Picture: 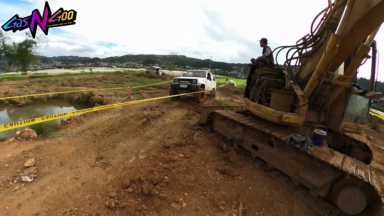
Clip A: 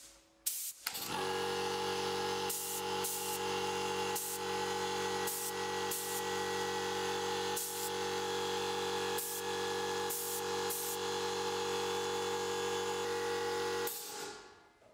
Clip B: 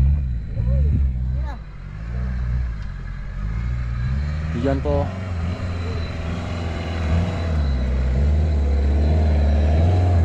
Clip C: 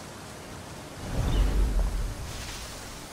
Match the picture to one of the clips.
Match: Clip B